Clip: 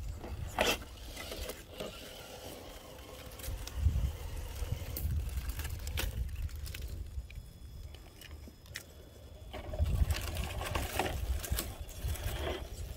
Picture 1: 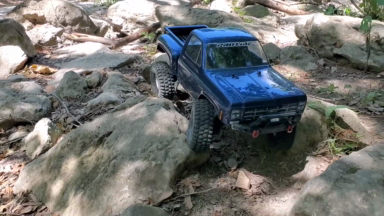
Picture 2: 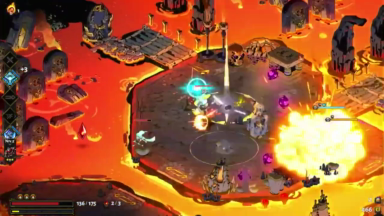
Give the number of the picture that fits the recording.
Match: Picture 1